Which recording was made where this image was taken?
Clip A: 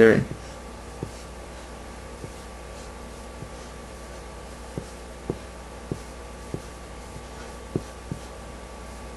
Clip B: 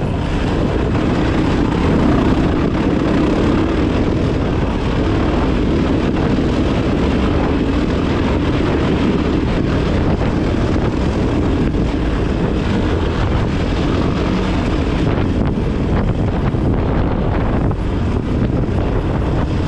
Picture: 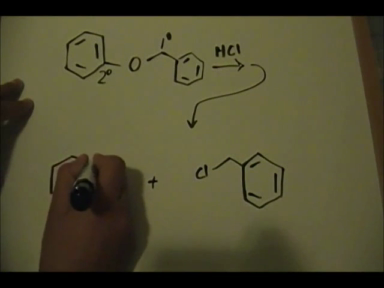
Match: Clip A